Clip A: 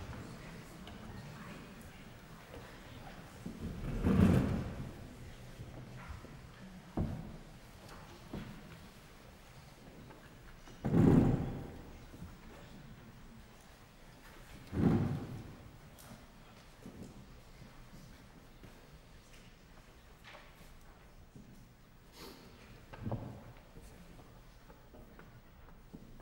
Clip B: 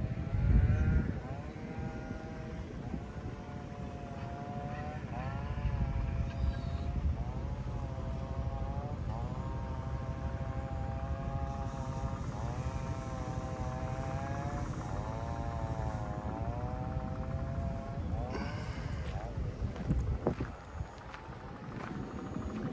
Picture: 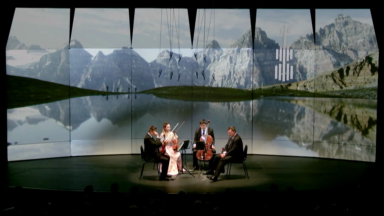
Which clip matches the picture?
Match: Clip A